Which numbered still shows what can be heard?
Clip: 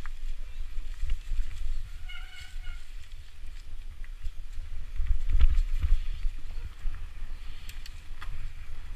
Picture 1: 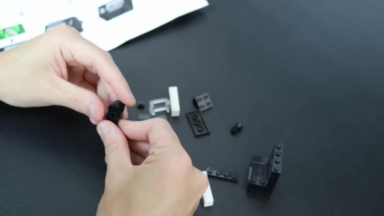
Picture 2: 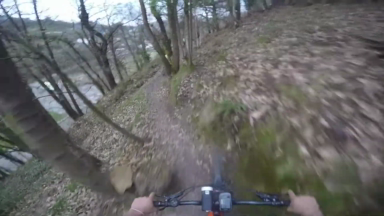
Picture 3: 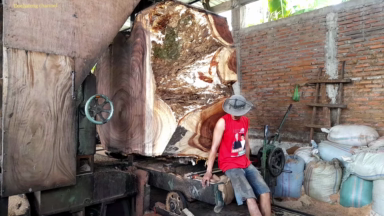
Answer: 2